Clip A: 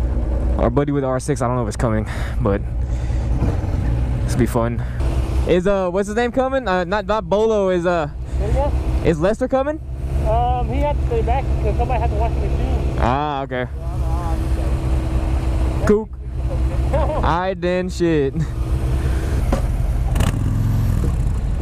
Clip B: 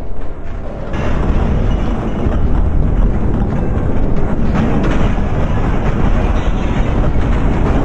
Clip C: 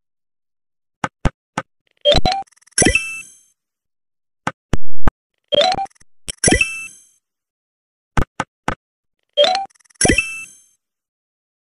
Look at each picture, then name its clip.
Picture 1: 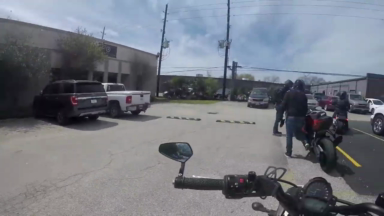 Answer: A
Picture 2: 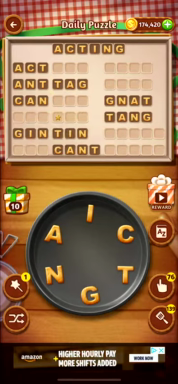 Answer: C